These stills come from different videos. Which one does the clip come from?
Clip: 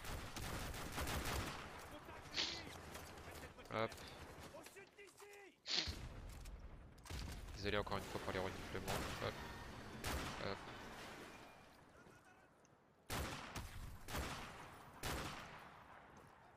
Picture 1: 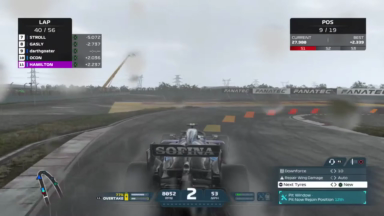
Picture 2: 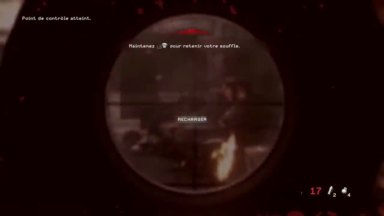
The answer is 2